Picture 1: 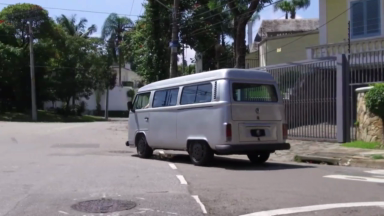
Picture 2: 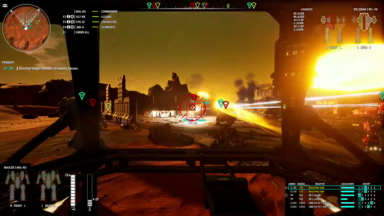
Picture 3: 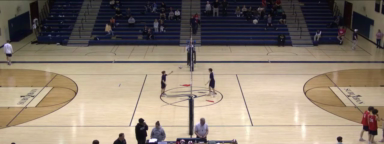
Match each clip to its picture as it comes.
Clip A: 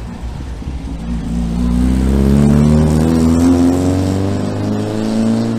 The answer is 1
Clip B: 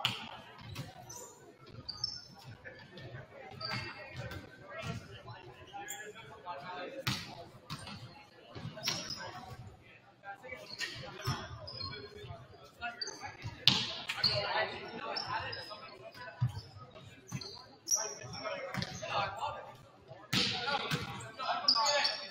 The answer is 3